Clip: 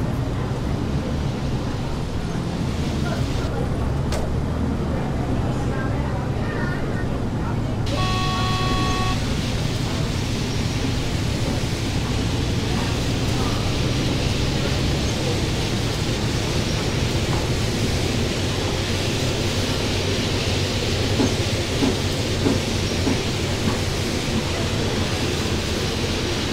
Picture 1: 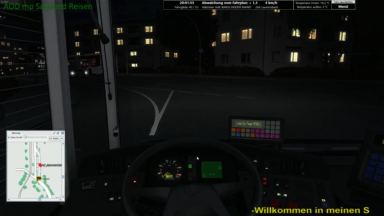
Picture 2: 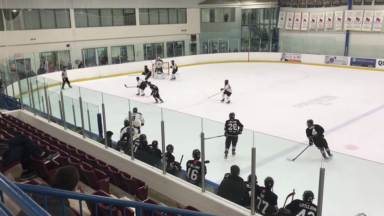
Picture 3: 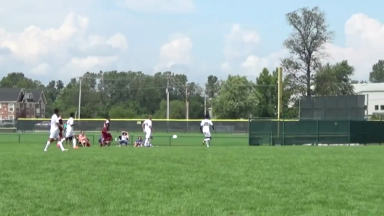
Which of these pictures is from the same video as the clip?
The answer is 1